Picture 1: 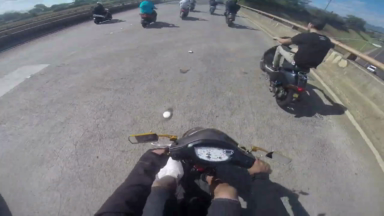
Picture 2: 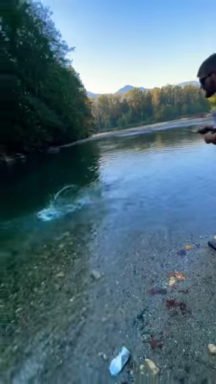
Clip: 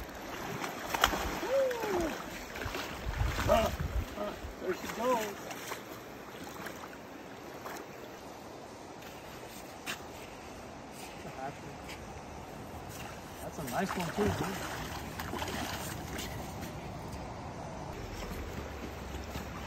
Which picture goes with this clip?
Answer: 2